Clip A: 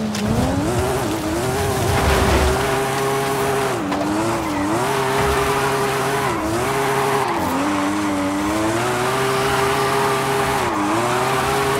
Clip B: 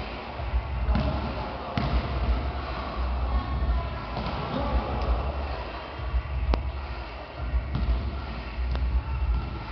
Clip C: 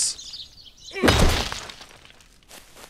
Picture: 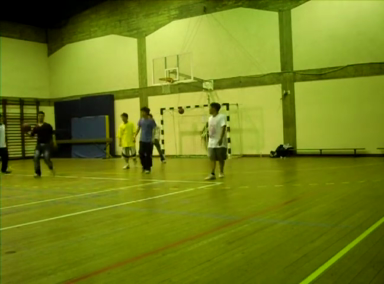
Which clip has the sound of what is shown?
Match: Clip B